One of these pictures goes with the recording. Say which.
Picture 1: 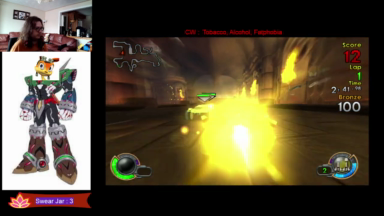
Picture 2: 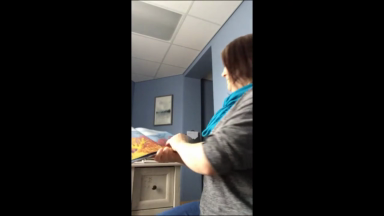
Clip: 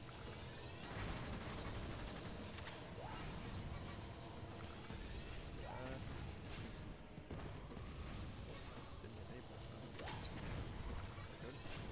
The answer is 1